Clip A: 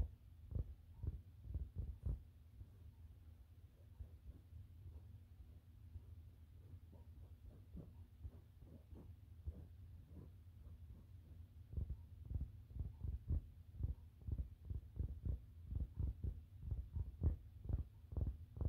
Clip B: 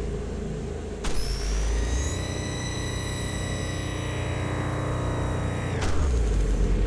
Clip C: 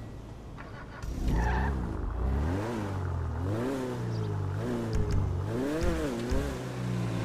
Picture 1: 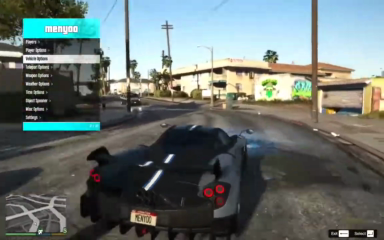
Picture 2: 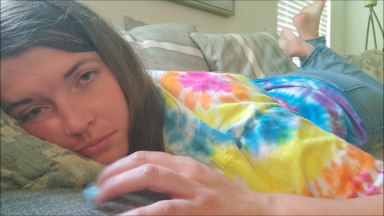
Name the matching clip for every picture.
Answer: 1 C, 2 A